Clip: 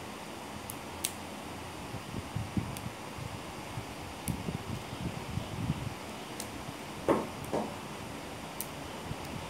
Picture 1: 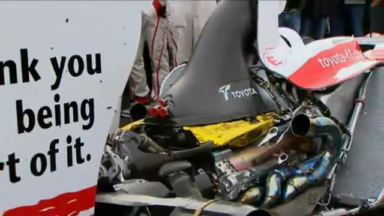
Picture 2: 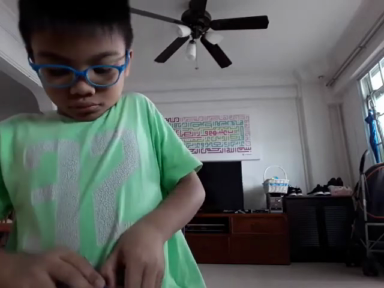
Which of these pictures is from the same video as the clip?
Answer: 2